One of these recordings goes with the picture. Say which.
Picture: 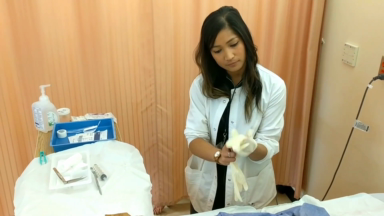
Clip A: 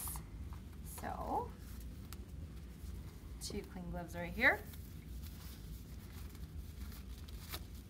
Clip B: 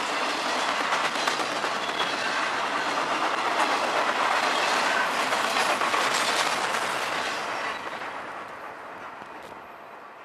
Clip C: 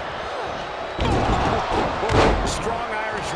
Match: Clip A